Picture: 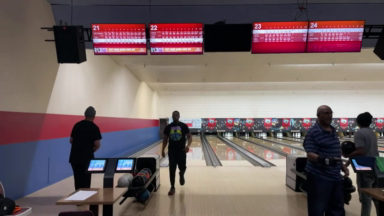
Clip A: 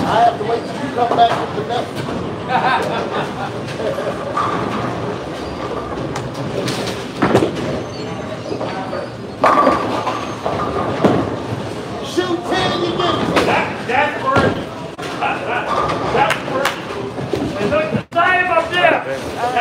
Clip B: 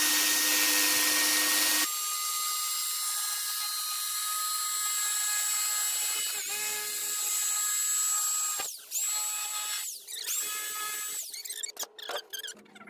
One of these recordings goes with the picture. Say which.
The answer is A